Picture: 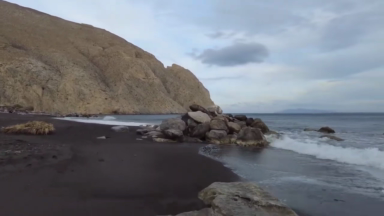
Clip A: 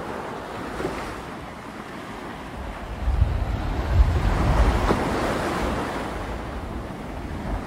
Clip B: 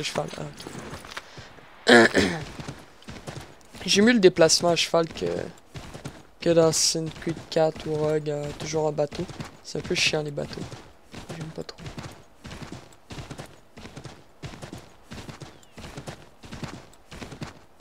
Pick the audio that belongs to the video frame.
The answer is A